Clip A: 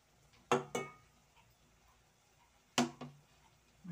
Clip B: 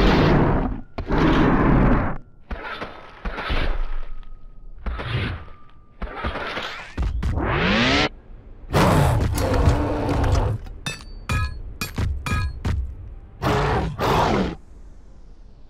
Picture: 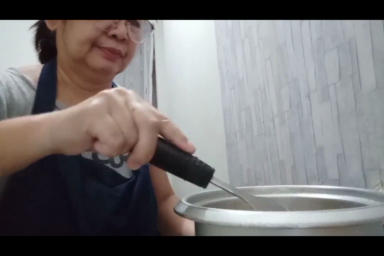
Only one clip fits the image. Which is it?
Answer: A